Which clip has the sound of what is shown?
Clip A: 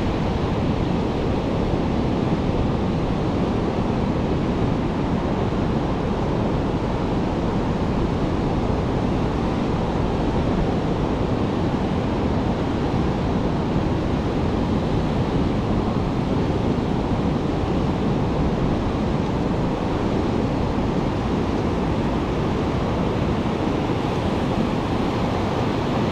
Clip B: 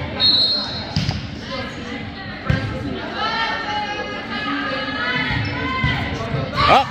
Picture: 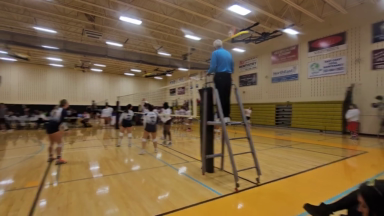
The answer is B